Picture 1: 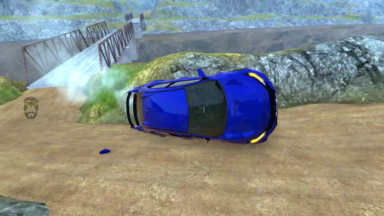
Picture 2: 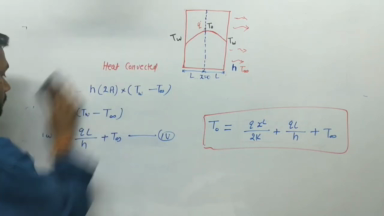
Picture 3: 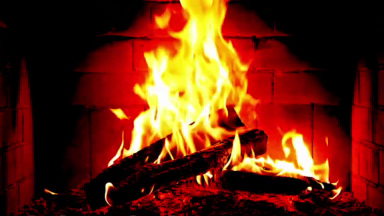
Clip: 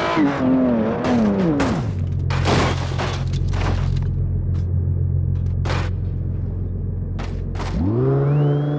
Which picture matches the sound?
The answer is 1